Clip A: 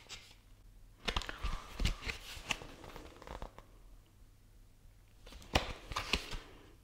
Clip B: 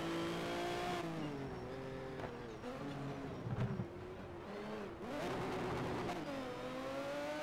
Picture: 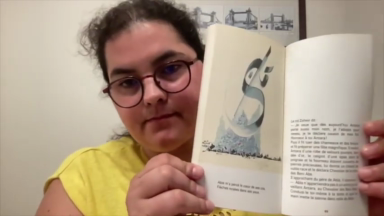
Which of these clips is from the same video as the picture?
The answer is A